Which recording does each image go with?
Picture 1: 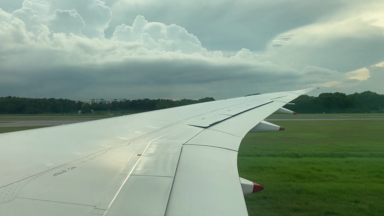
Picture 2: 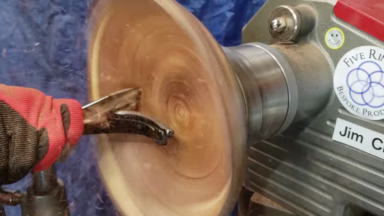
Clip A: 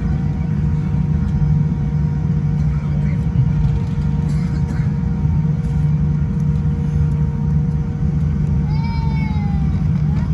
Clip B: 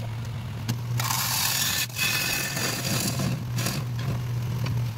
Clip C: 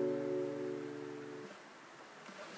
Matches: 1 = A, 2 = B